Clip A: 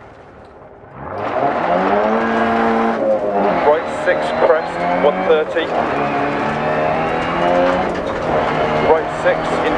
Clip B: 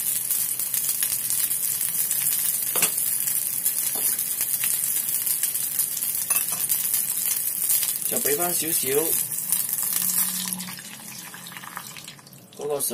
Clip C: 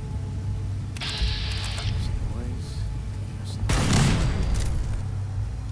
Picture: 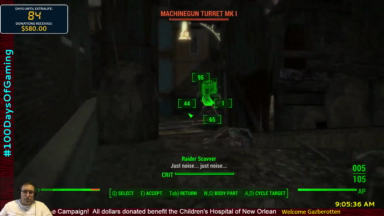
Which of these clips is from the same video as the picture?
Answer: C